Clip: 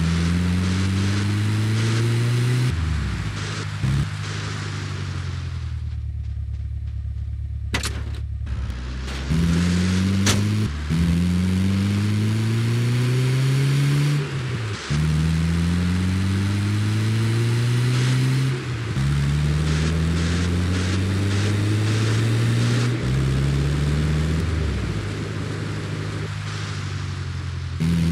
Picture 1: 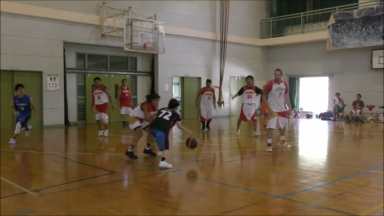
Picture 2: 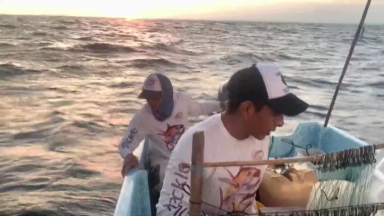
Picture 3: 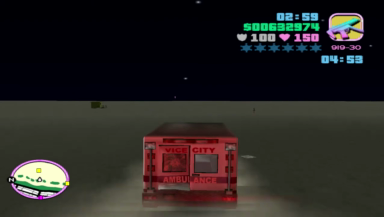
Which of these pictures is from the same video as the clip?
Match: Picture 3